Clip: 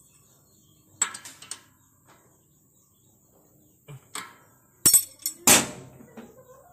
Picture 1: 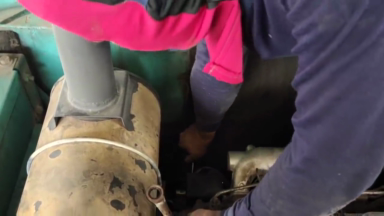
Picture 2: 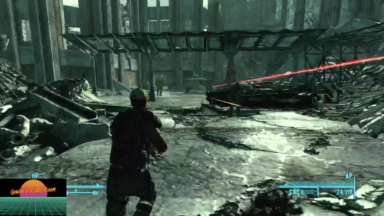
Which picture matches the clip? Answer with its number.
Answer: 1